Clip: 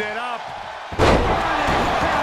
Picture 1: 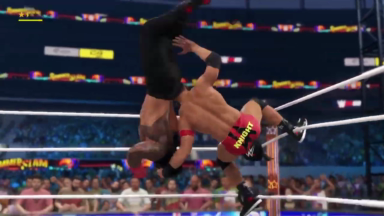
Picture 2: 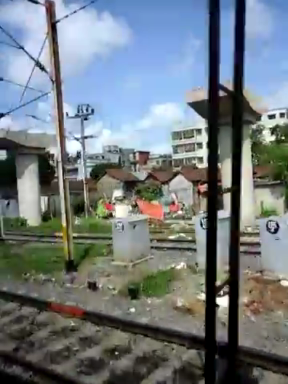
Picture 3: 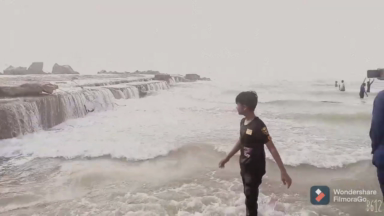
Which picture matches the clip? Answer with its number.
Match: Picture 1